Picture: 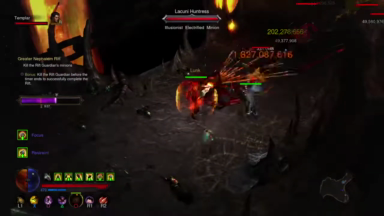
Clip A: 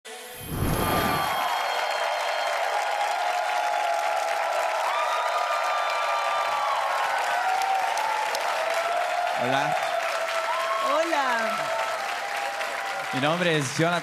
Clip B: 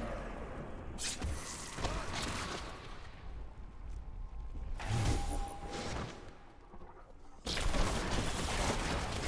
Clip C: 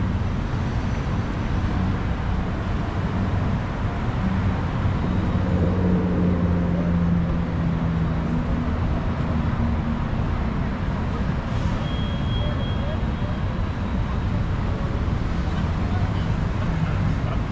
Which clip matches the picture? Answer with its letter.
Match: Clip B